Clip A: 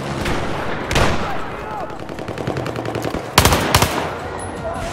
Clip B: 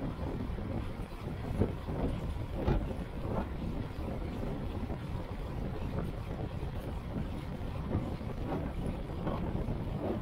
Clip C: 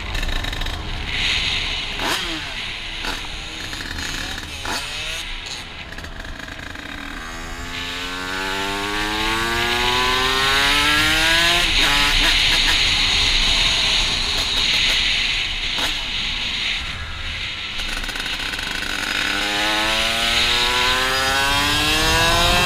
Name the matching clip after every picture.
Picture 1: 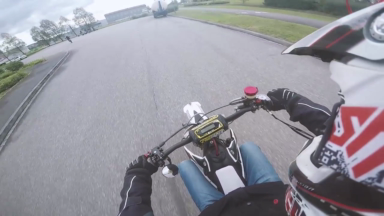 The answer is C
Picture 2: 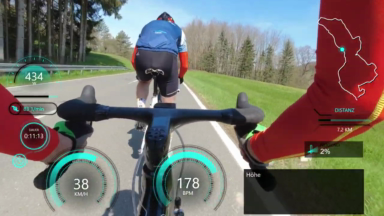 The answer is B